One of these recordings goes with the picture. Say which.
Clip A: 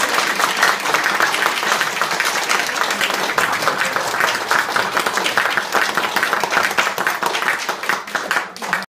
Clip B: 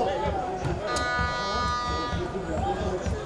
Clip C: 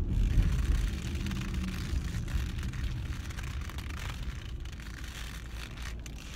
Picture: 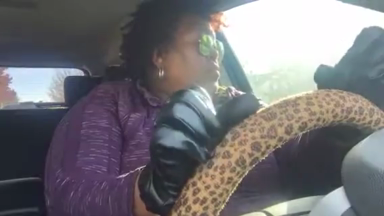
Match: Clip C